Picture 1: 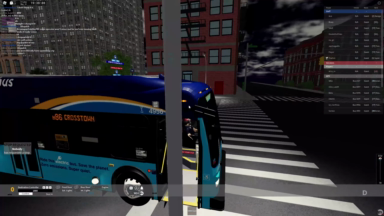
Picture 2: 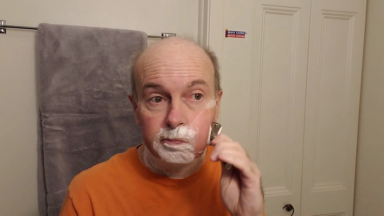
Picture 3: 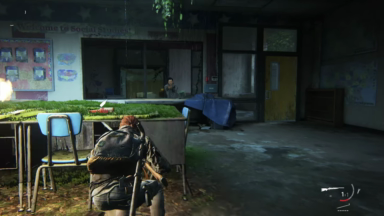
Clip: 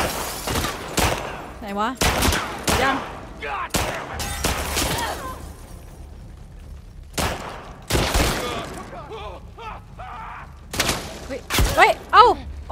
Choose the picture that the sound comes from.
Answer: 3